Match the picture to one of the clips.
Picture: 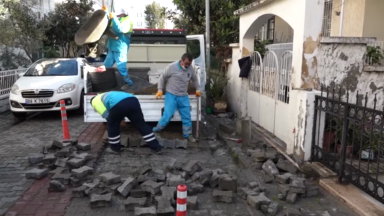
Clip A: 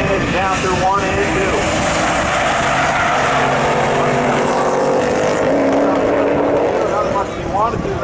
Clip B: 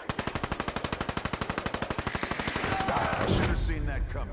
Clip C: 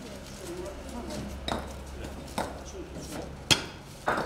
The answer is C